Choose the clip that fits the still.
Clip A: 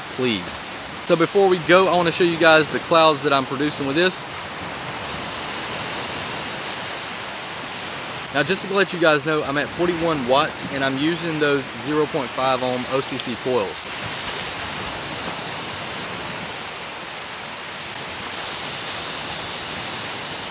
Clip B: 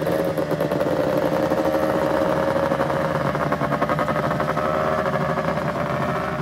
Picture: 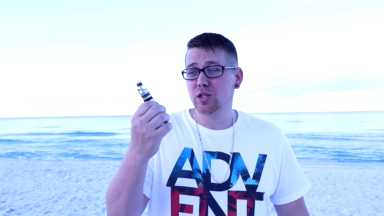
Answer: A